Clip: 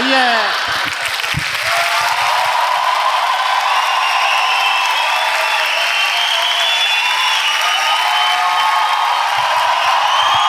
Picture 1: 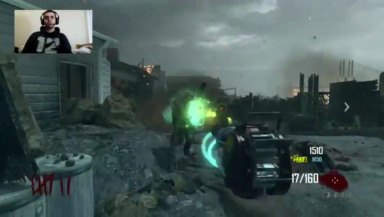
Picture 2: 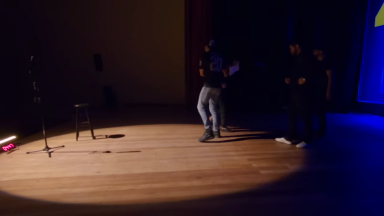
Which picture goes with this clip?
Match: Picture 2